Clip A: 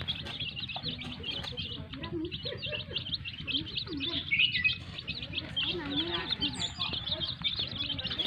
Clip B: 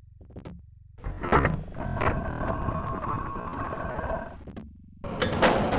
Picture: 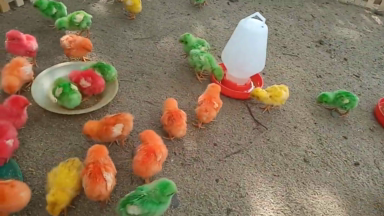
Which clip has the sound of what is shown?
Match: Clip A